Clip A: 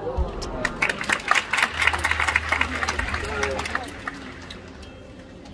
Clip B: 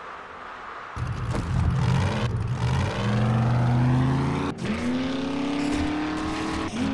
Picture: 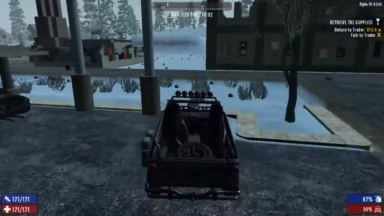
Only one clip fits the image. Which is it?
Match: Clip B